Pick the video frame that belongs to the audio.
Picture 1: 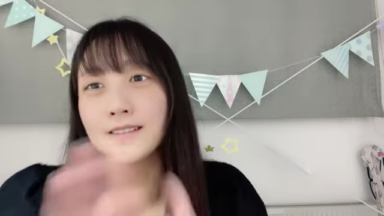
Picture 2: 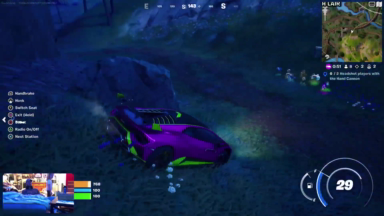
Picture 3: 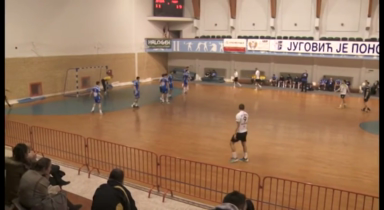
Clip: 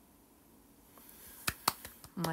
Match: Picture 1